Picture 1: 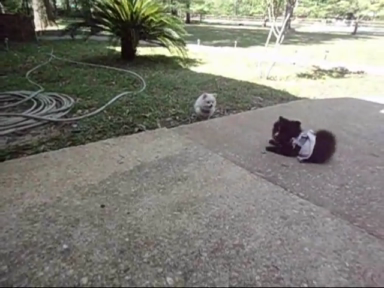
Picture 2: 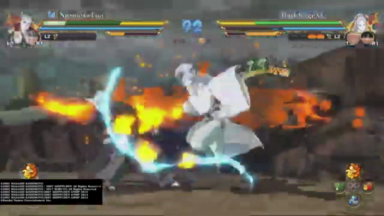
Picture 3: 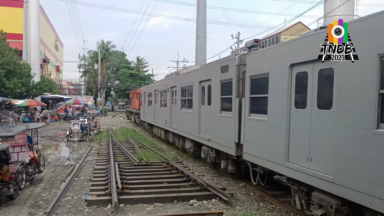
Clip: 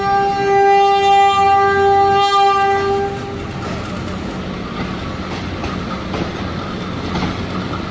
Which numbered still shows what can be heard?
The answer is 3